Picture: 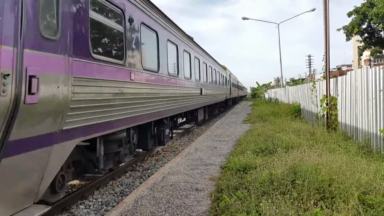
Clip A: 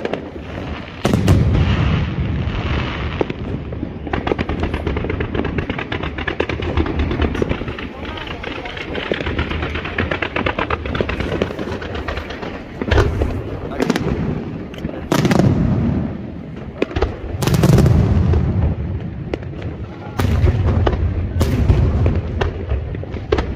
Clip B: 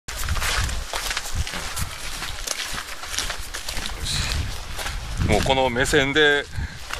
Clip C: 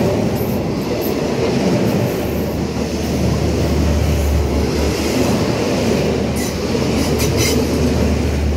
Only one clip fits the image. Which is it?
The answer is C